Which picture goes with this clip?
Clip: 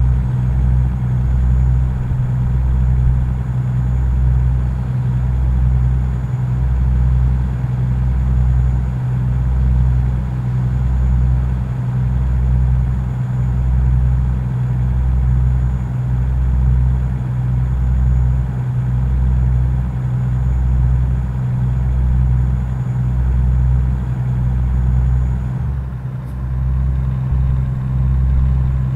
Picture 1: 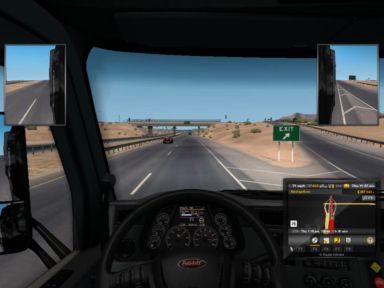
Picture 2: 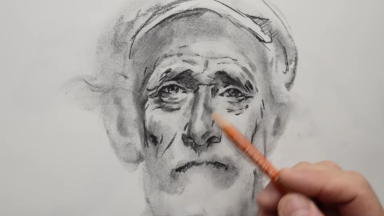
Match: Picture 1